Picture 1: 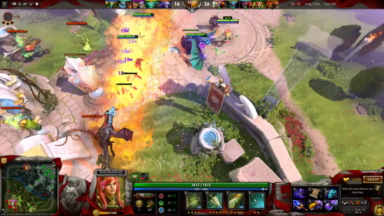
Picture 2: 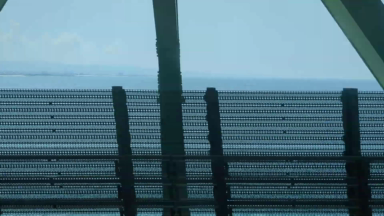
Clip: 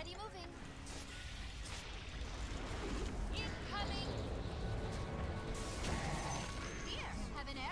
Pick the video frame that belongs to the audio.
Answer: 1